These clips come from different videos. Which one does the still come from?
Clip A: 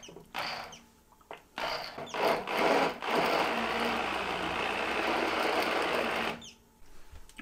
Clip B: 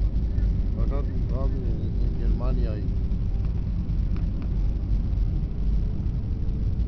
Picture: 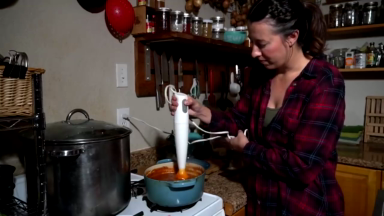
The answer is A